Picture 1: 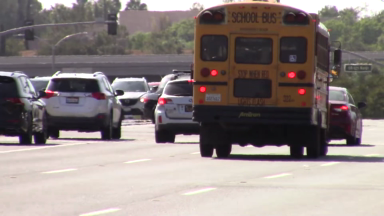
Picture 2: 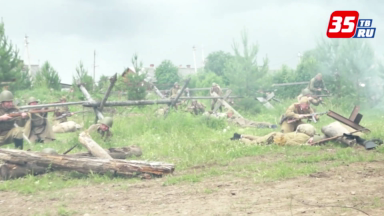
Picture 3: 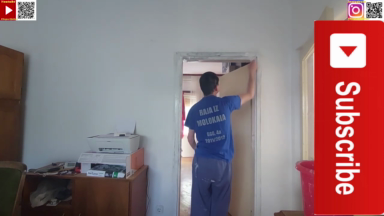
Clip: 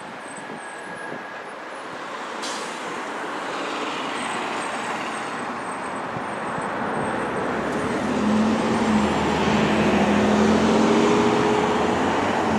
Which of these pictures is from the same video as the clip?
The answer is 1